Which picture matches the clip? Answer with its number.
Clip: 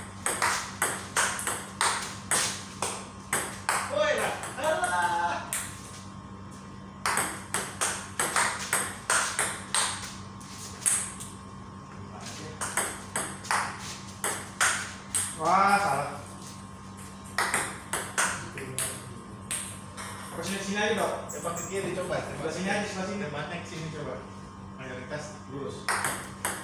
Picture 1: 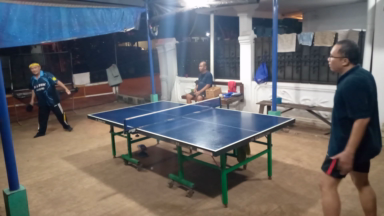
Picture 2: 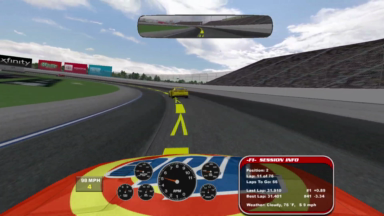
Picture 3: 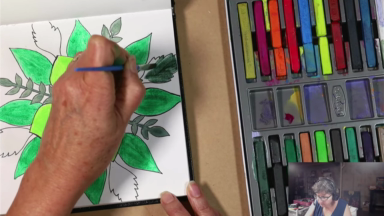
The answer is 1